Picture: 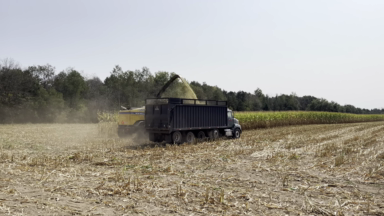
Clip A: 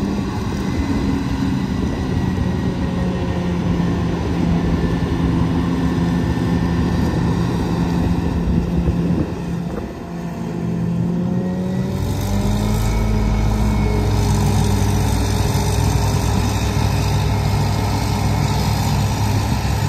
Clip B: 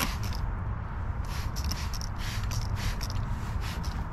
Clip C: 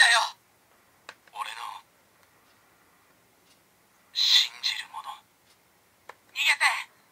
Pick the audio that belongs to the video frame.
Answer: A